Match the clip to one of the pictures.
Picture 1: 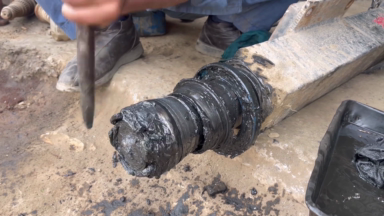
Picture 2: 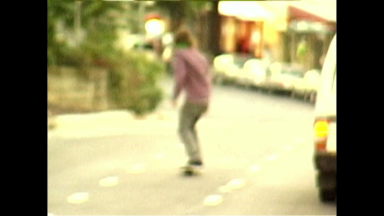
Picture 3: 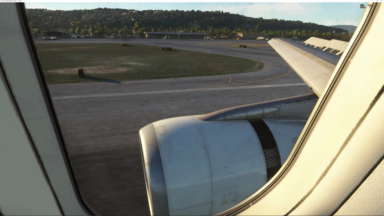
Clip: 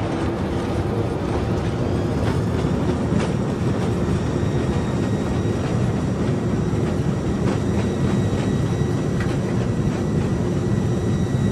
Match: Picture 3